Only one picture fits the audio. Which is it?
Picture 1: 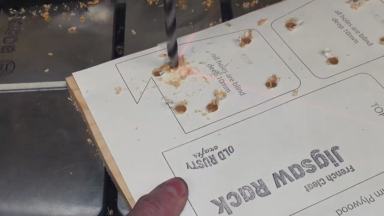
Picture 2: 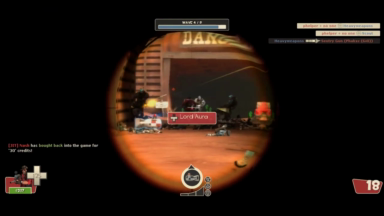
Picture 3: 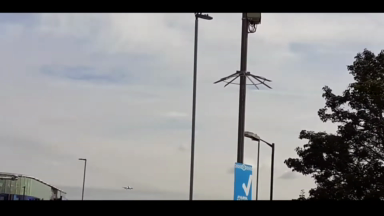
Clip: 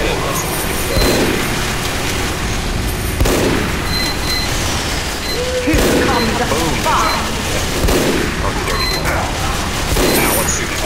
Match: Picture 2